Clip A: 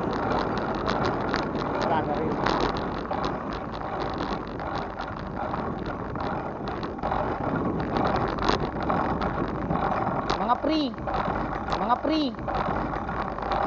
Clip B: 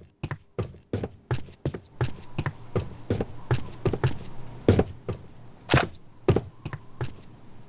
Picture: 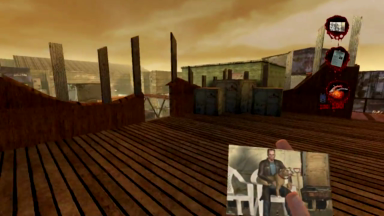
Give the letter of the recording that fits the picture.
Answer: B